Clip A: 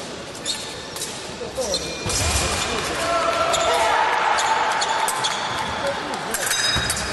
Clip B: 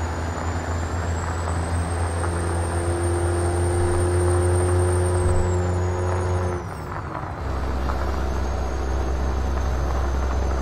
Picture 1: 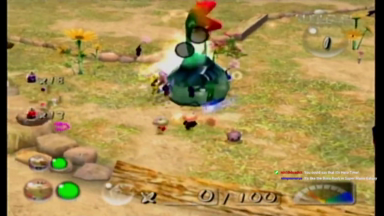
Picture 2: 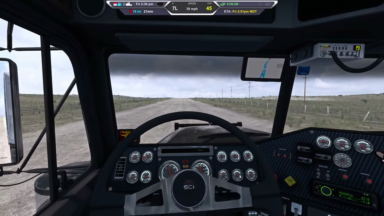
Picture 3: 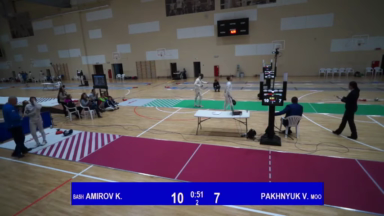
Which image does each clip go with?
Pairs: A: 3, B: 2